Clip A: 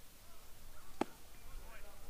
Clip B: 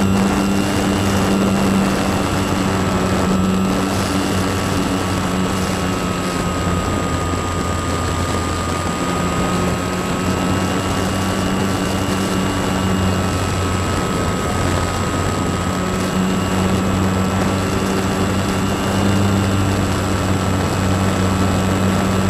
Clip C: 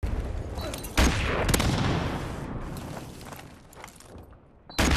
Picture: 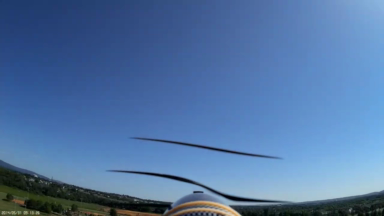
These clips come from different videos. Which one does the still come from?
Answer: B